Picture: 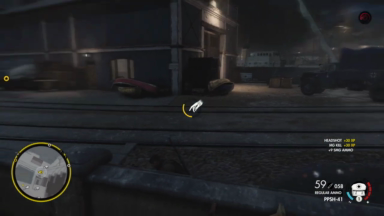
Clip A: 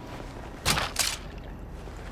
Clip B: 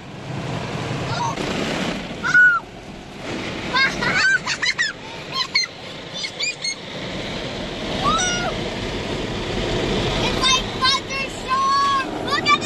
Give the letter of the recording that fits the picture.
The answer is A